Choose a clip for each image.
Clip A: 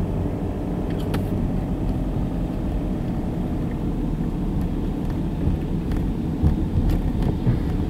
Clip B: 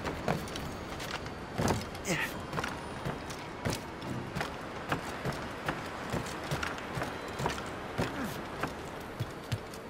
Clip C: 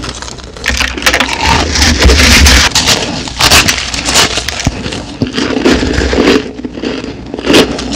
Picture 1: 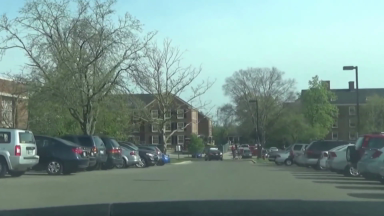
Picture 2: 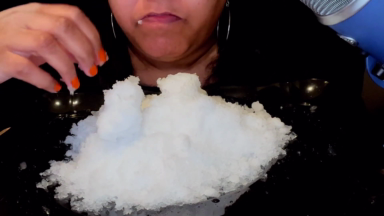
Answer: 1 A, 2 C